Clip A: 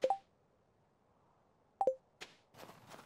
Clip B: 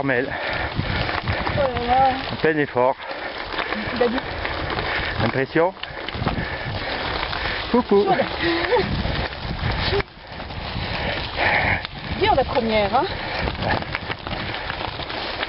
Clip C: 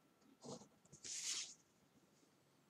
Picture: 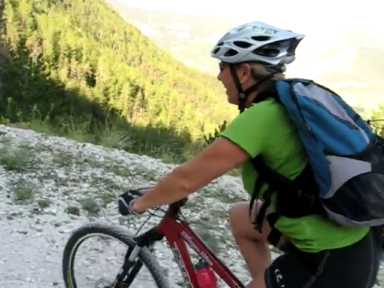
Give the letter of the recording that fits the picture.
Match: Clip B